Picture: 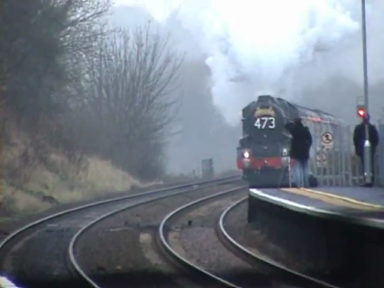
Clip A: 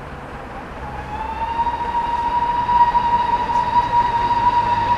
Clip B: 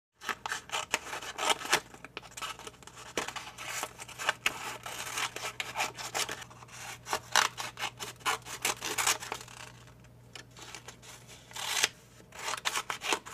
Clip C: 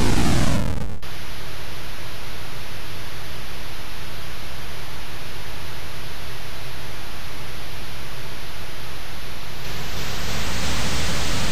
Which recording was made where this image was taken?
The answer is A